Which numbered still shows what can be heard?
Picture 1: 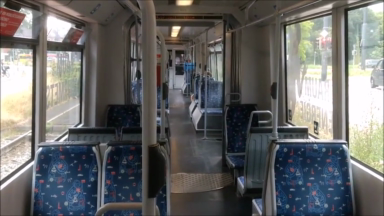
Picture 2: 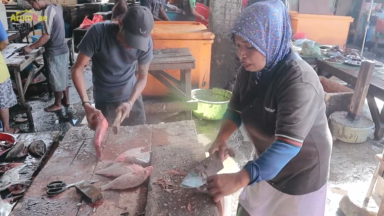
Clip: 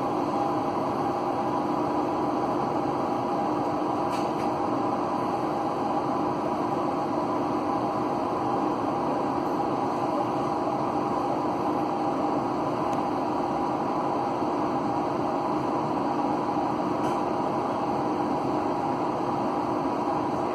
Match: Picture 1